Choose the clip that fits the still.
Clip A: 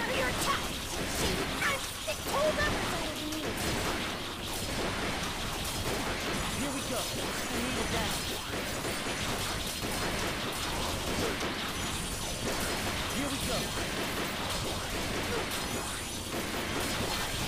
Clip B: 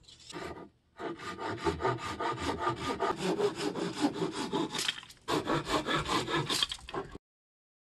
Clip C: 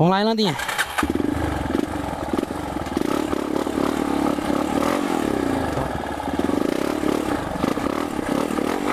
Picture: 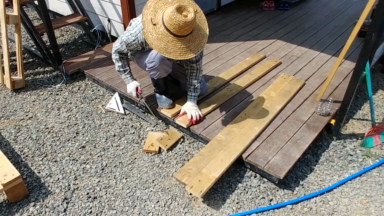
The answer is B